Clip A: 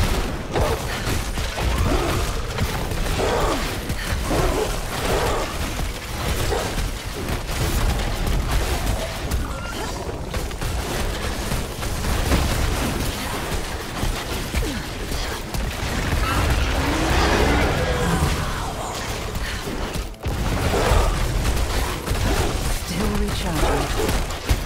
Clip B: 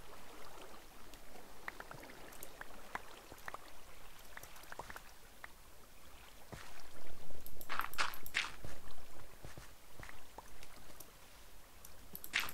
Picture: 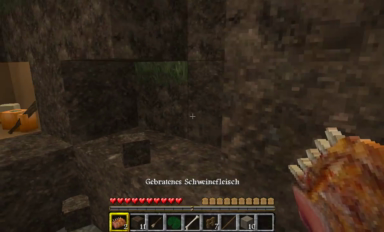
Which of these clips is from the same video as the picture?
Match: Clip B